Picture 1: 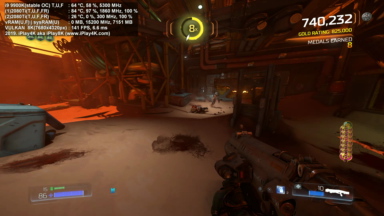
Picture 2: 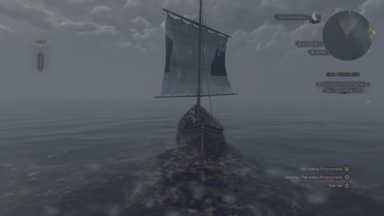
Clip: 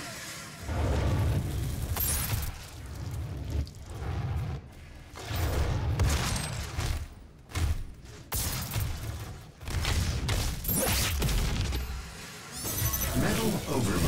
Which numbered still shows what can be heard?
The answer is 1